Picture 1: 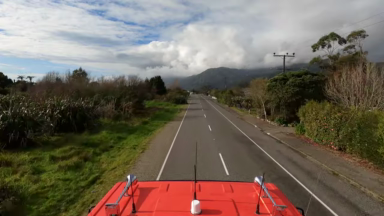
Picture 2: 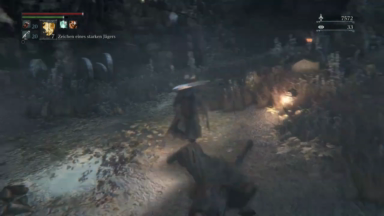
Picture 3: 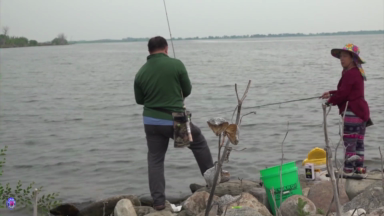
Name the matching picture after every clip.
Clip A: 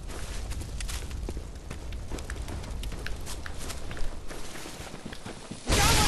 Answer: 2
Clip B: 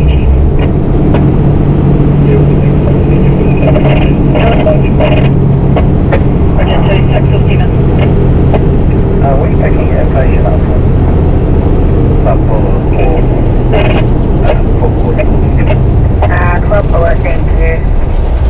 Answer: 1